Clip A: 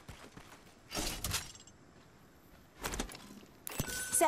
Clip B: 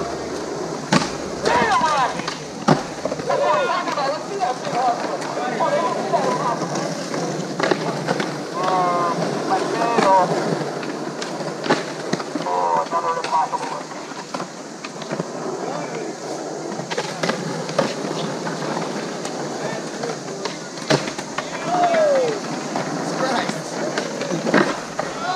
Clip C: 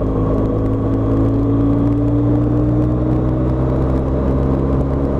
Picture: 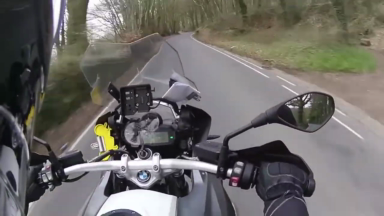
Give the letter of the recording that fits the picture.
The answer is C